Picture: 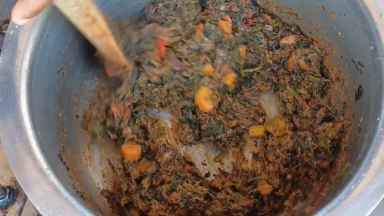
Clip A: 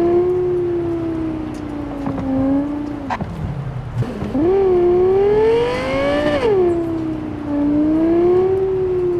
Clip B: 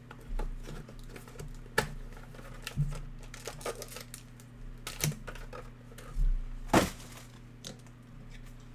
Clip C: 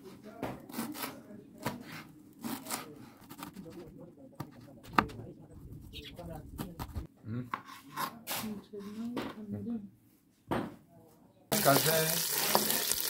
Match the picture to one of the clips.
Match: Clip C